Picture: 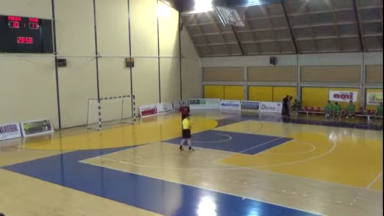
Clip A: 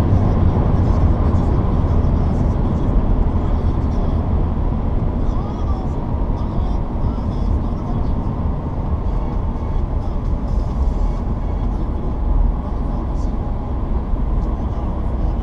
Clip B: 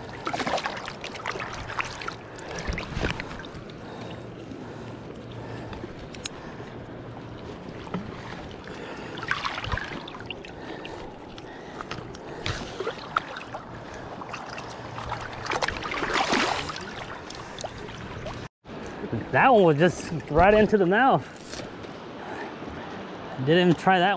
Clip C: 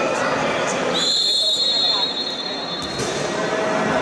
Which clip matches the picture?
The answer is C